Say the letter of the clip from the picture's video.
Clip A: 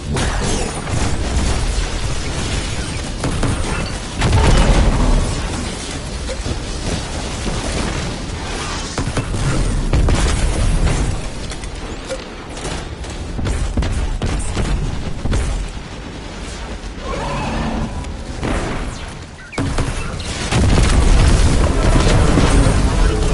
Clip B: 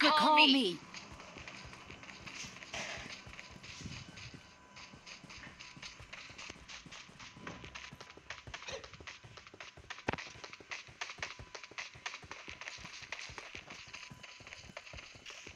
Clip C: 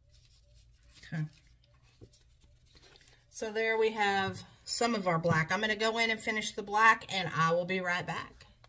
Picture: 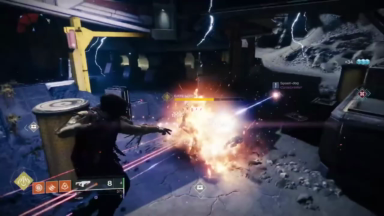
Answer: A